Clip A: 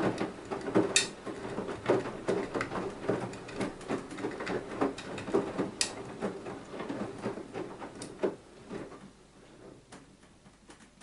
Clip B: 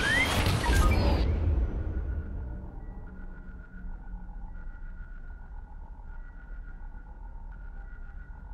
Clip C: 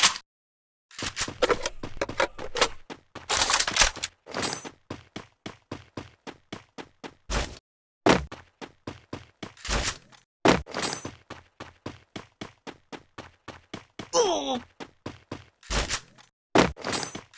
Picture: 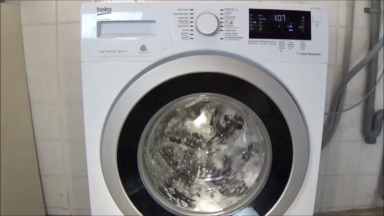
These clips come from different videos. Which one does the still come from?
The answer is A